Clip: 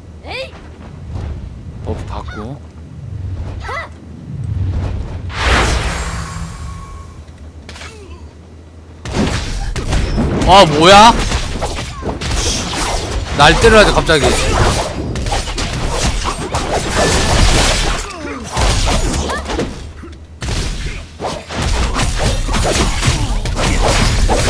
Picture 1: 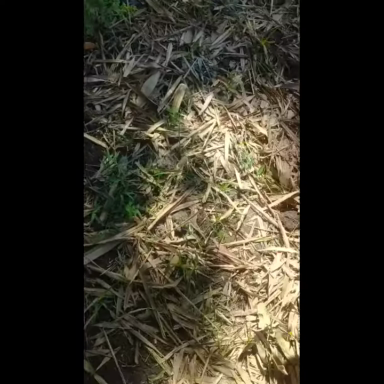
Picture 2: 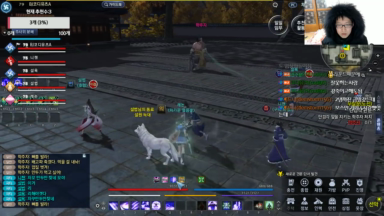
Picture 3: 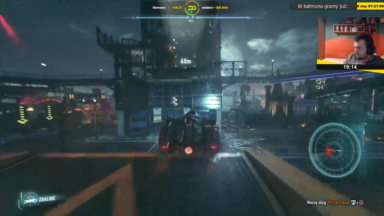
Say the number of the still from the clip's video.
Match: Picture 2